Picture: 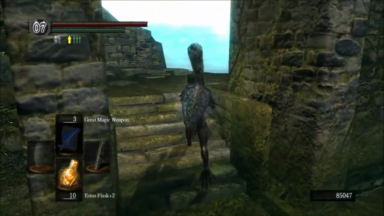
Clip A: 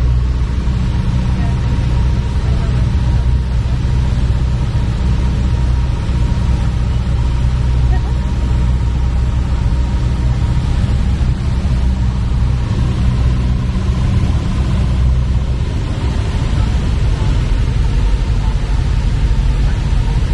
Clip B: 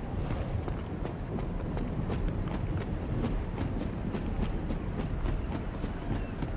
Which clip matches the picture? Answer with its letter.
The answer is B